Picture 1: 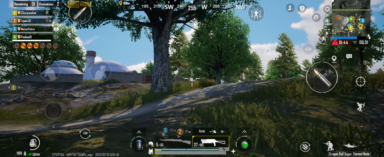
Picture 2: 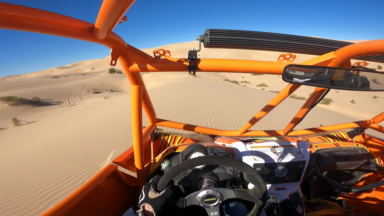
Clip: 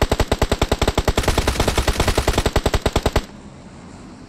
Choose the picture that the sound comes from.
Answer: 1